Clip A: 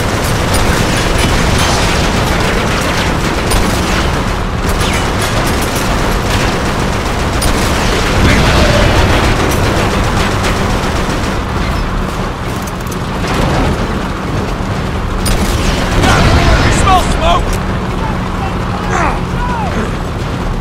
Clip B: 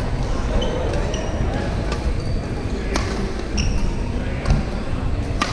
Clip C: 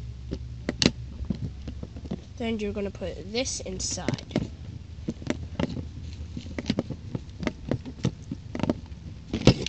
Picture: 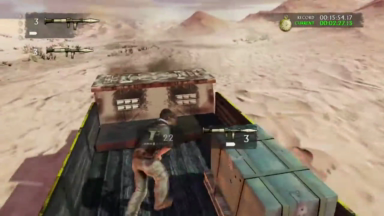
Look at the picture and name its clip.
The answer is A